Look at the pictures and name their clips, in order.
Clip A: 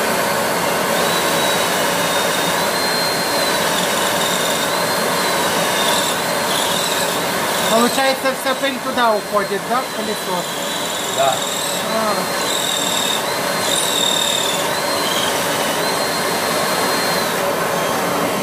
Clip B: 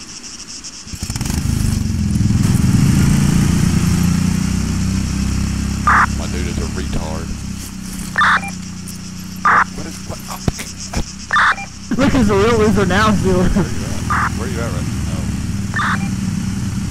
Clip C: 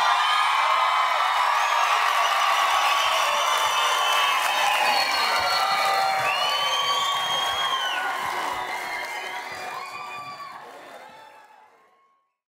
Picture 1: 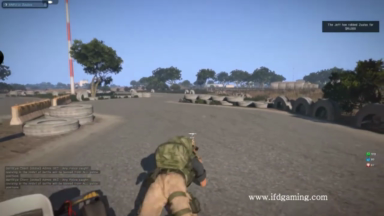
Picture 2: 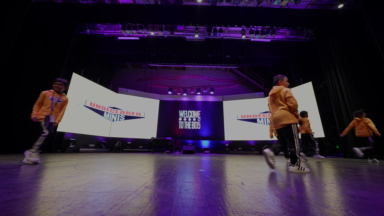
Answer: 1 B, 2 C